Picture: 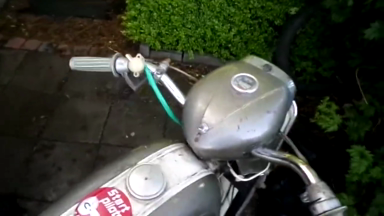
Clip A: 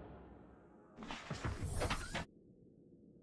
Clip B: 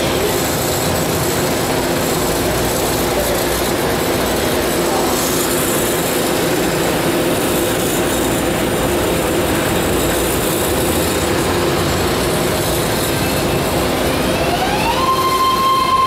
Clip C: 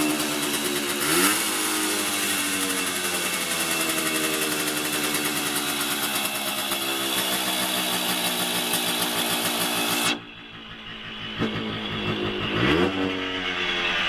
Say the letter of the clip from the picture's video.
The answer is C